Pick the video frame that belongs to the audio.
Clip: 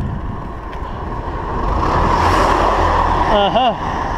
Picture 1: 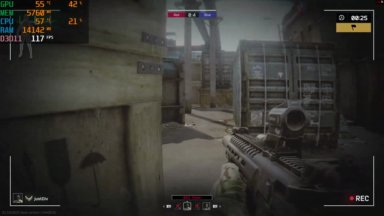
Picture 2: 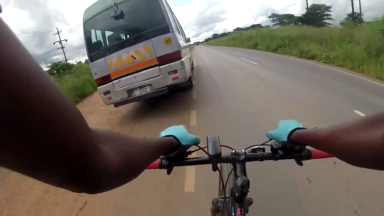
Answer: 2